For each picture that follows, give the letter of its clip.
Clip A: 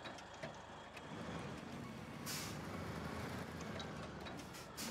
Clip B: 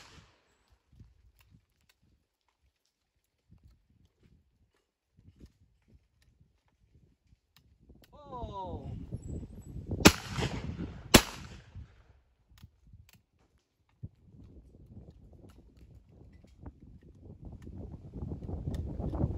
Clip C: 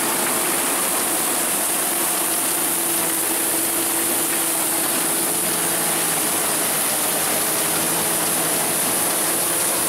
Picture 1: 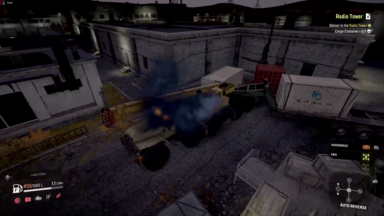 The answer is A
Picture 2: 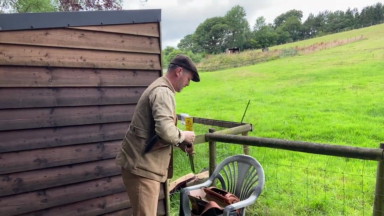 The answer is B